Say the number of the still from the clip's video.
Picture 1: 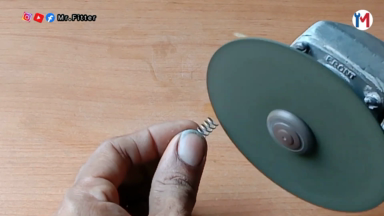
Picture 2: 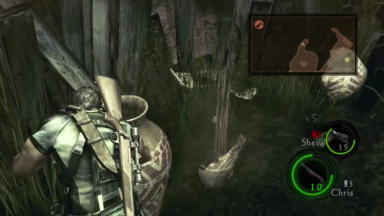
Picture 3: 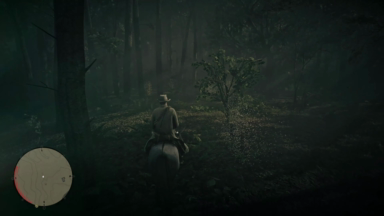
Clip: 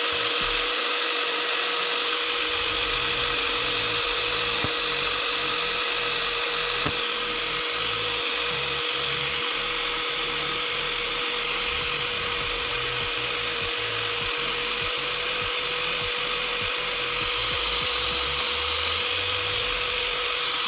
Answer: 1